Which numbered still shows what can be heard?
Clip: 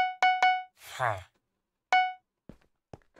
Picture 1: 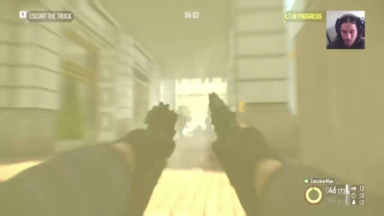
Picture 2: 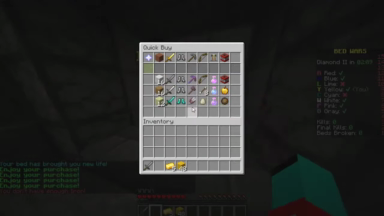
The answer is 2